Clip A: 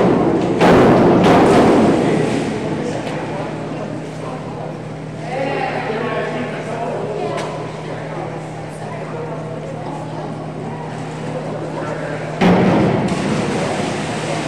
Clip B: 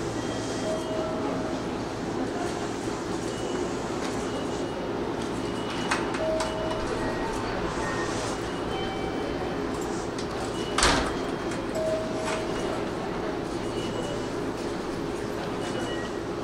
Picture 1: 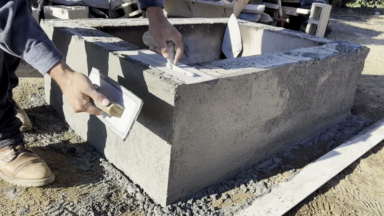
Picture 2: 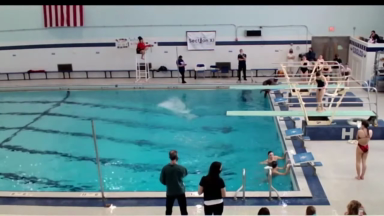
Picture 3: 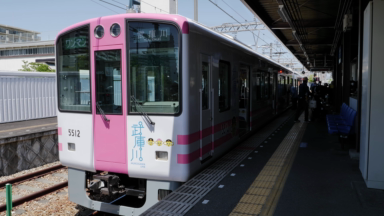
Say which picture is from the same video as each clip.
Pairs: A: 2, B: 3